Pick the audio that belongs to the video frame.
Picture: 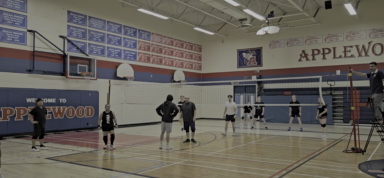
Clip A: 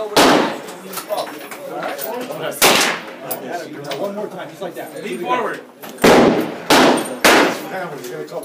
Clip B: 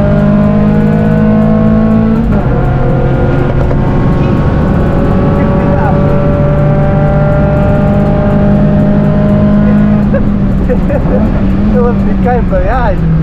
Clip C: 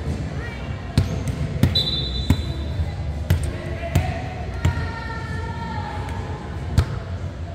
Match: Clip C